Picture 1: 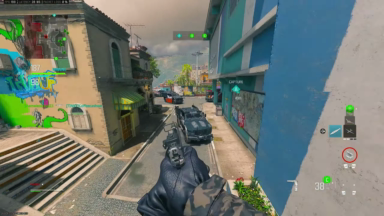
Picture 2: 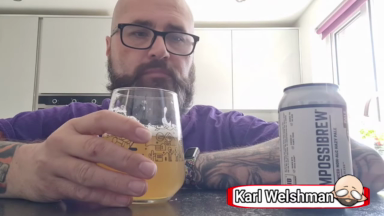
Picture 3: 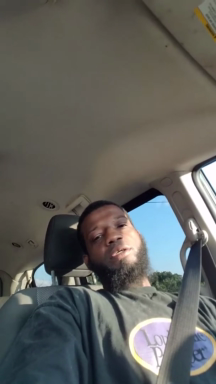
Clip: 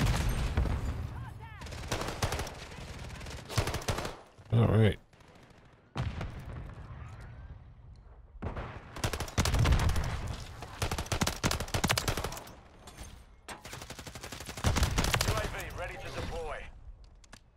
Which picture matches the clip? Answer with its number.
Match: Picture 1